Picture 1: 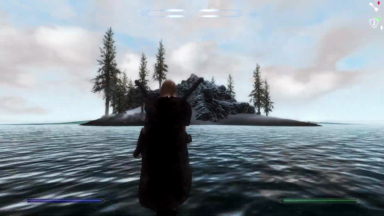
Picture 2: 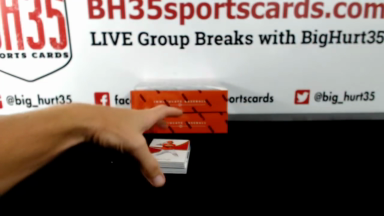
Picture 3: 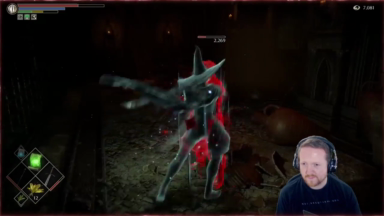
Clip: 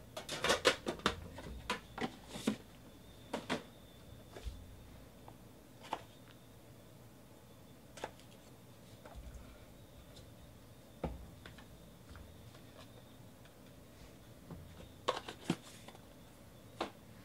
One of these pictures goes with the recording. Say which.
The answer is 2